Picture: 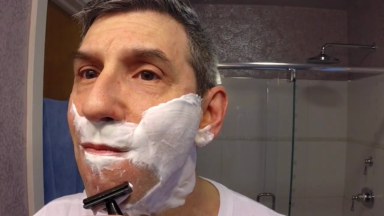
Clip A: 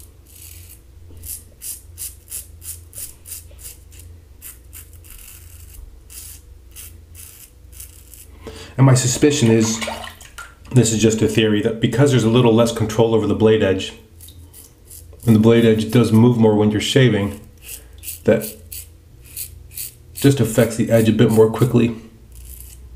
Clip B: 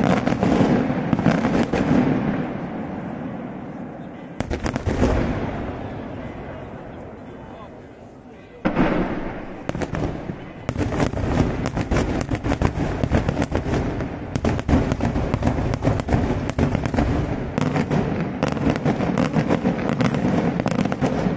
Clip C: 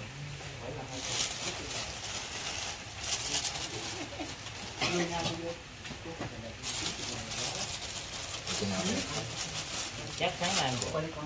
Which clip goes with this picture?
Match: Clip A